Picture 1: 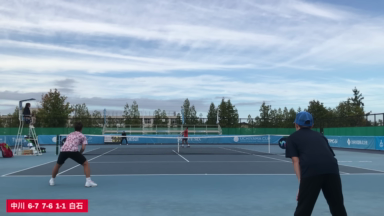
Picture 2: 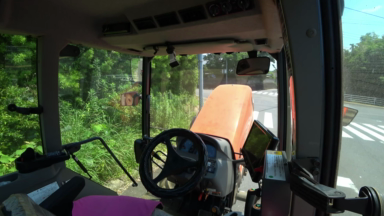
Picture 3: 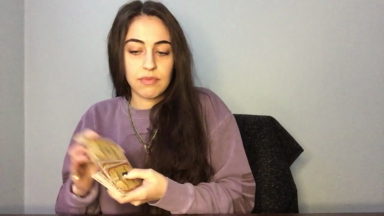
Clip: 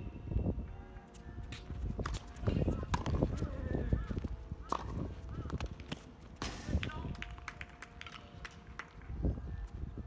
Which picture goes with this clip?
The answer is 1